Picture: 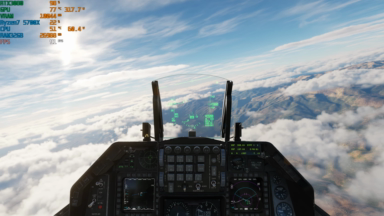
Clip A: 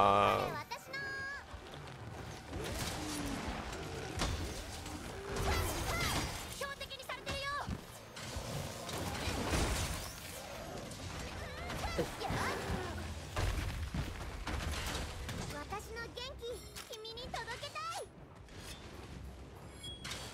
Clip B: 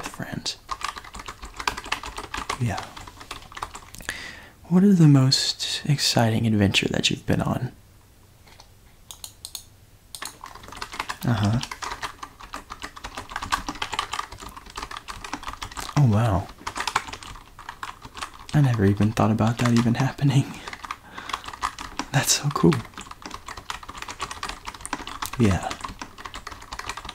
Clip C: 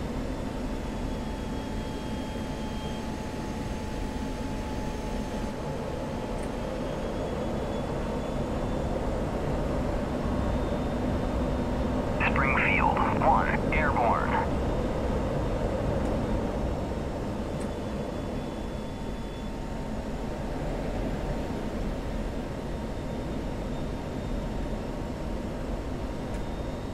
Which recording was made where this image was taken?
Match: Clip C